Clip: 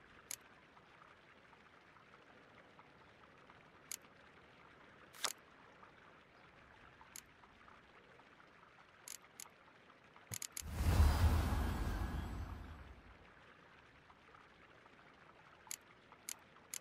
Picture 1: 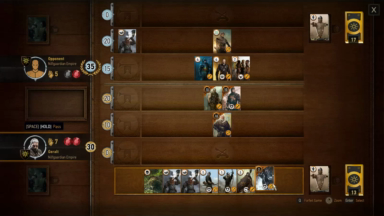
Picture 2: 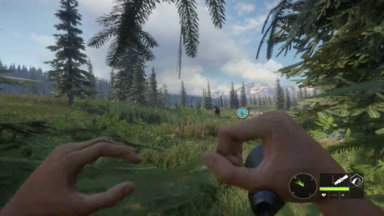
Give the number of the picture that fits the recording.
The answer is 1